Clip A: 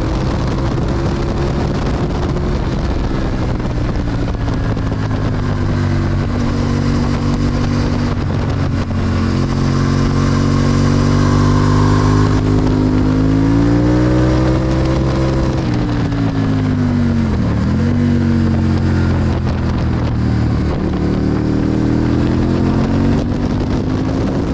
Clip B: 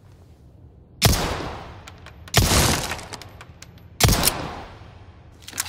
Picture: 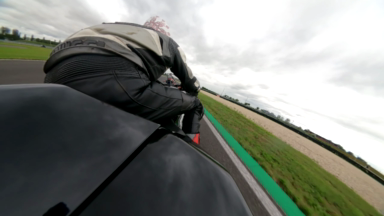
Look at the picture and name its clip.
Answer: A